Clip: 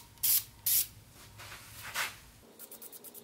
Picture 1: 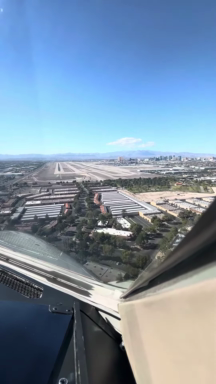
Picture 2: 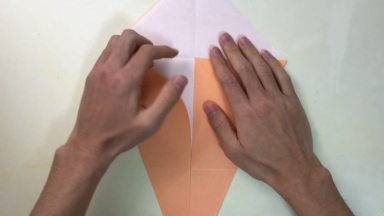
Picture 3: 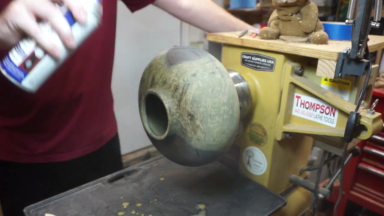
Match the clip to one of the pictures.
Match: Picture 3